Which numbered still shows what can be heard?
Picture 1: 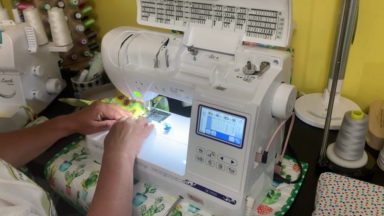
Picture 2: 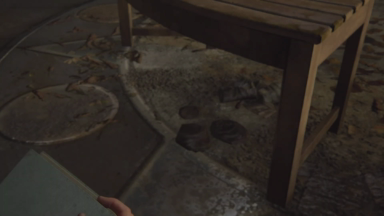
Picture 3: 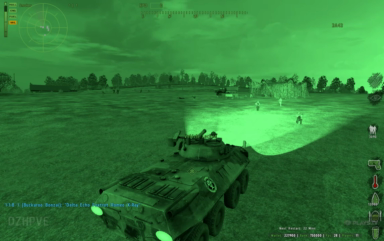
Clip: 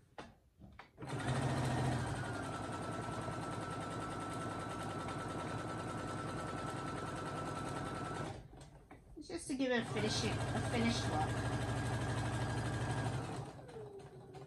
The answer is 1